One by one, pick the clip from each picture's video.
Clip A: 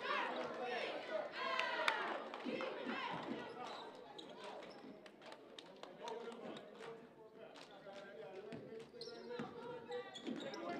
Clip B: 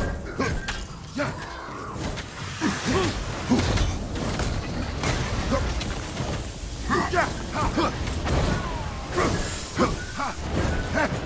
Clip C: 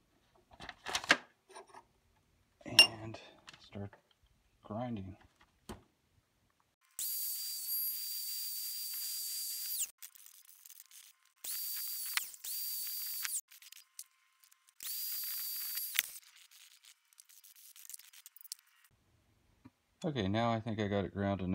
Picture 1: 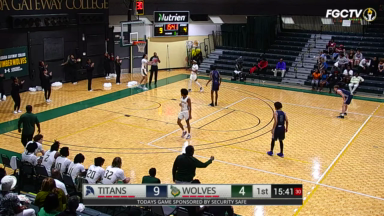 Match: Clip A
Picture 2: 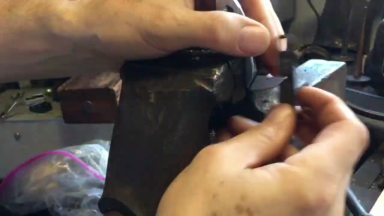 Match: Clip C